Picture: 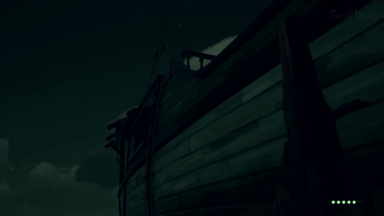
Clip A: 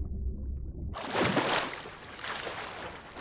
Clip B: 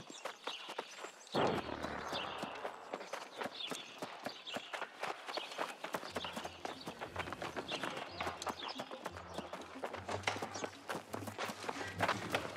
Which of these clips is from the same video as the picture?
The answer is A